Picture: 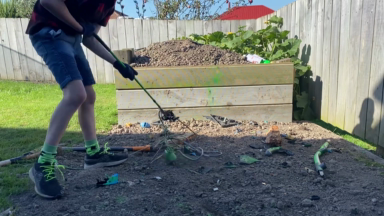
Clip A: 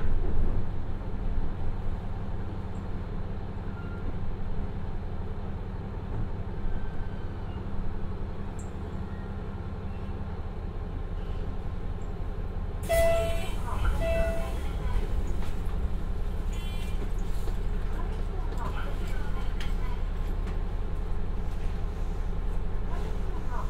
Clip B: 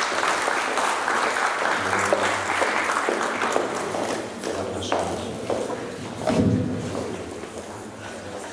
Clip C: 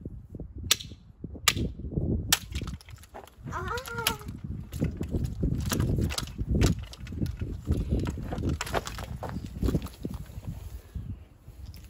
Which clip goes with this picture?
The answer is C